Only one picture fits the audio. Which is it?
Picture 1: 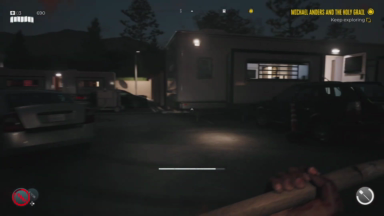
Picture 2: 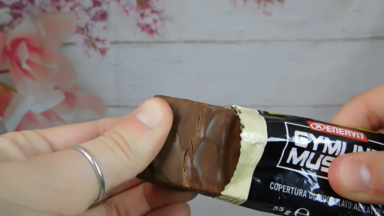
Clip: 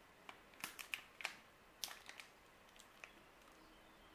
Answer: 2